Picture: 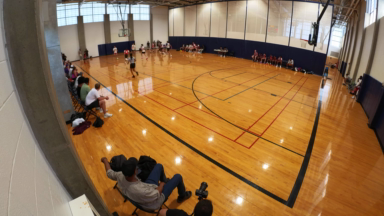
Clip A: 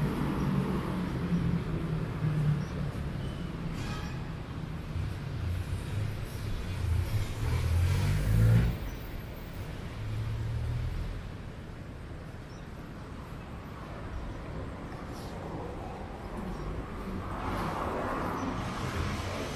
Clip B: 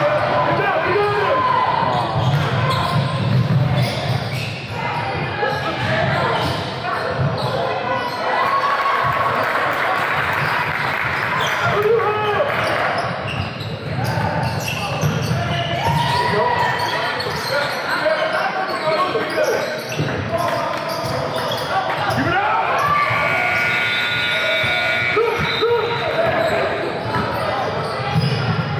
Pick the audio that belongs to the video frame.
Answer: B